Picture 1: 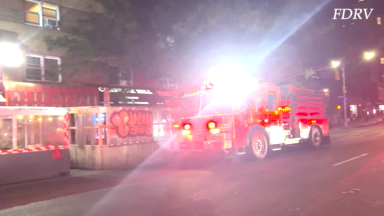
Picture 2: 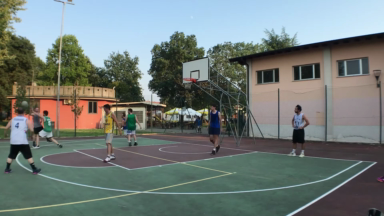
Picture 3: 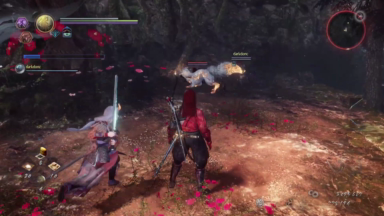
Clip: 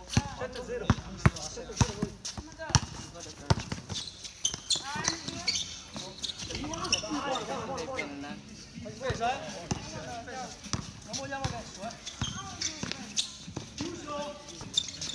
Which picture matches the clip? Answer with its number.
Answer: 2